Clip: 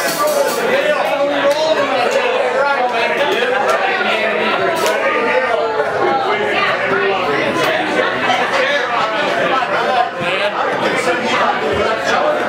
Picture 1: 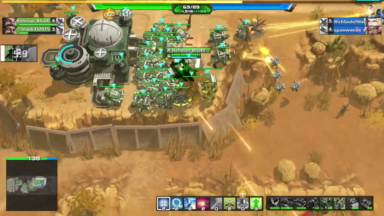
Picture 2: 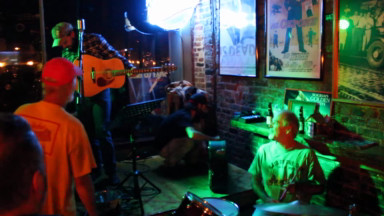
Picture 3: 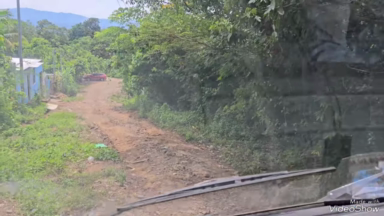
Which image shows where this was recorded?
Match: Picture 2